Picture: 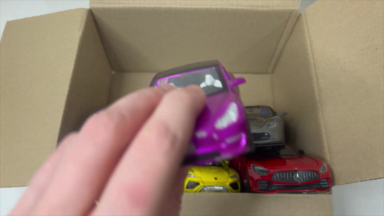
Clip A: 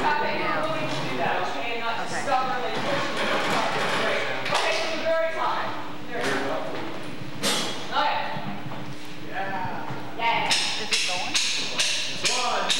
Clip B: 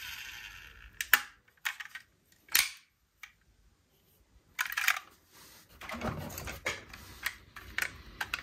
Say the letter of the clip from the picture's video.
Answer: B